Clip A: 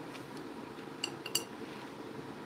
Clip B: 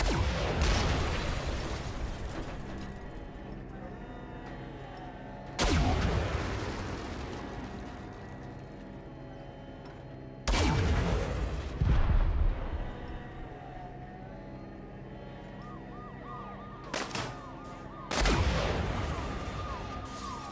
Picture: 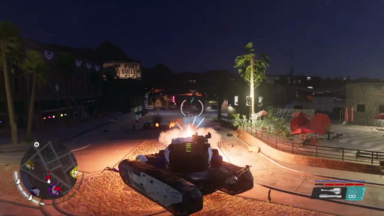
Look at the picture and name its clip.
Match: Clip B